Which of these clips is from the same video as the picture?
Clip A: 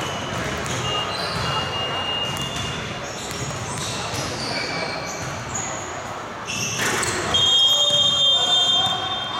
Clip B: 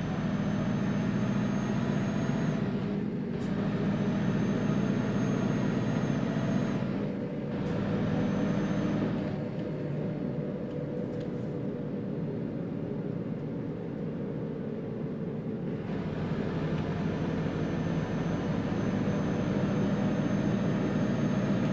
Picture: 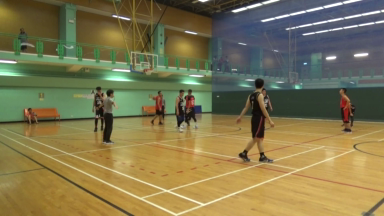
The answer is A